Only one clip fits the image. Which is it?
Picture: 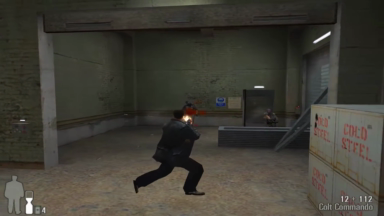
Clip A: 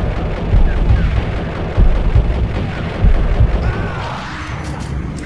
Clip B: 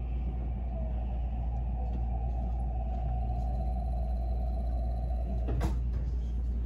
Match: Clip A